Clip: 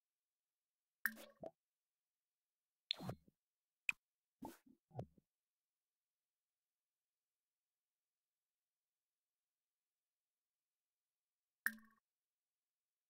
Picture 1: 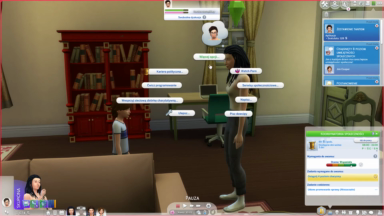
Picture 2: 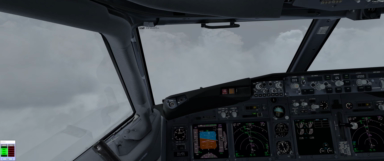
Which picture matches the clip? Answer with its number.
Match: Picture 1